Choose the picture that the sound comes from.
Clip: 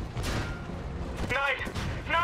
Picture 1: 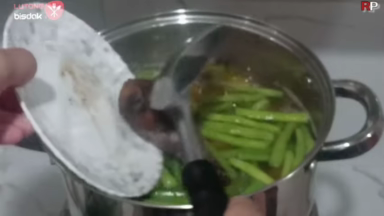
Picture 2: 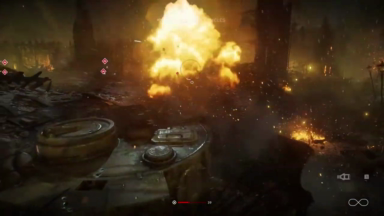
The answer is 2